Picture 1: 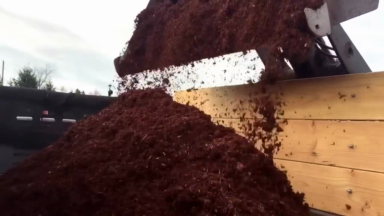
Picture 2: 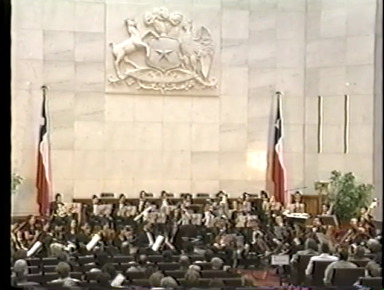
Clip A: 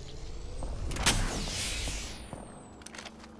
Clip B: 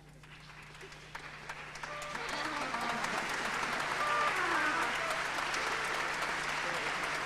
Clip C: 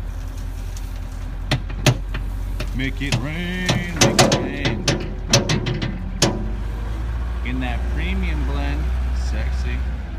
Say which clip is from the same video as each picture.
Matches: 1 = C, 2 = B